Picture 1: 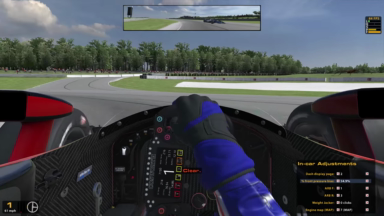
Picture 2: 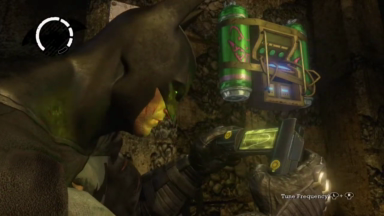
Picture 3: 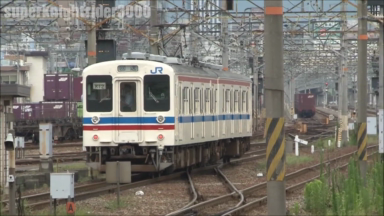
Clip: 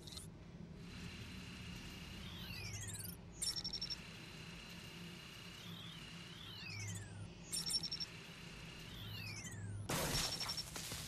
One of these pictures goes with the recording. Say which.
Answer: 2